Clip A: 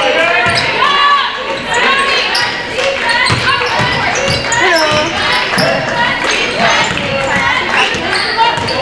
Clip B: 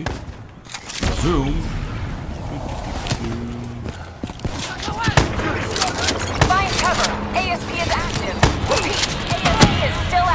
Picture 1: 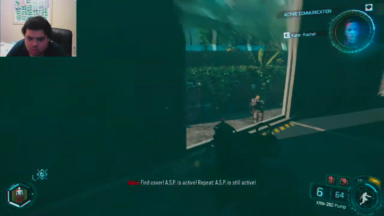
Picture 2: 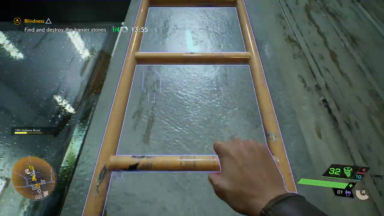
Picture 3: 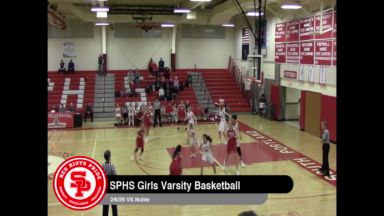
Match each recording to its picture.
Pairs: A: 3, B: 1